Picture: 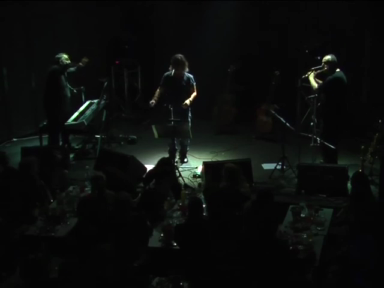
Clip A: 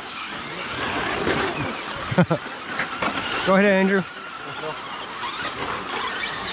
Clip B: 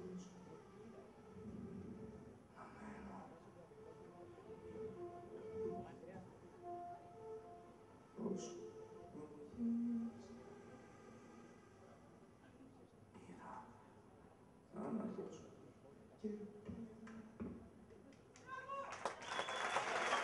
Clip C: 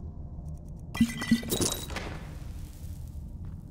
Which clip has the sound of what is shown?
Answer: B